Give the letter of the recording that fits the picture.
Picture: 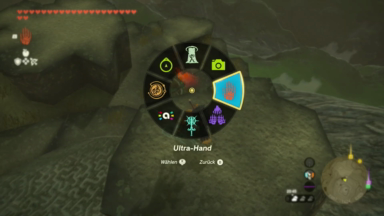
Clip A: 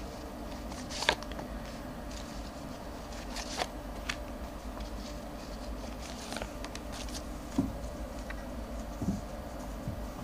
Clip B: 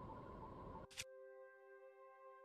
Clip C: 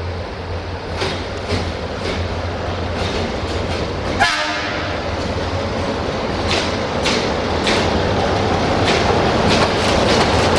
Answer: B